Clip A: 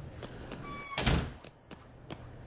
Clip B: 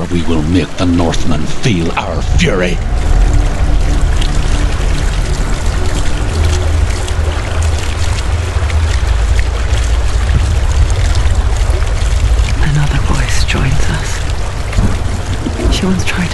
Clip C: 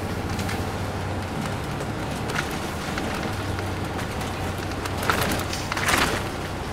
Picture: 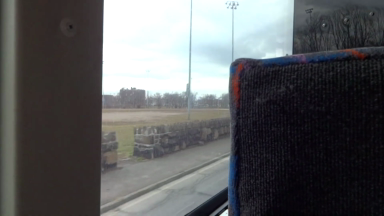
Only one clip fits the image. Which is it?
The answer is C